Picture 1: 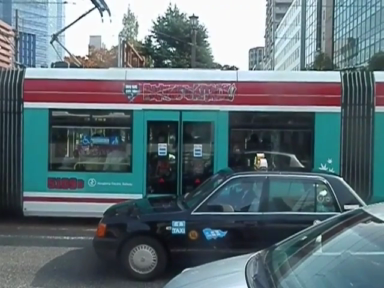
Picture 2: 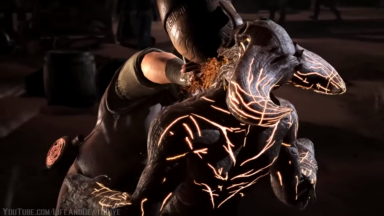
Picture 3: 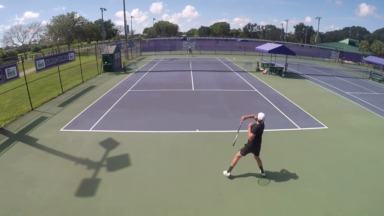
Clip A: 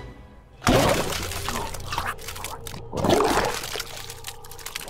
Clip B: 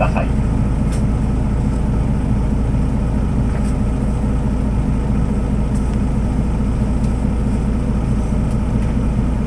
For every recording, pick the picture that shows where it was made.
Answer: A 2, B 1